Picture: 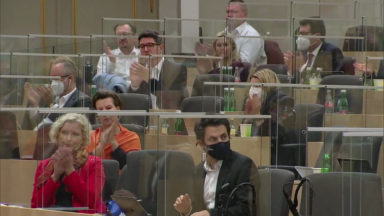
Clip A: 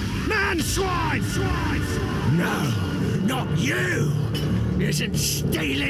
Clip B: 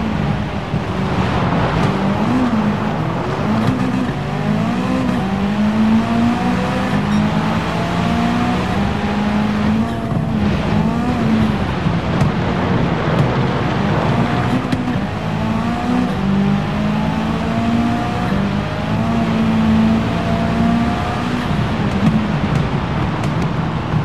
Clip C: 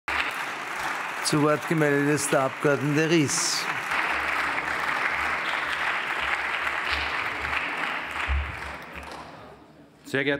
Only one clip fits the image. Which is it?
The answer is C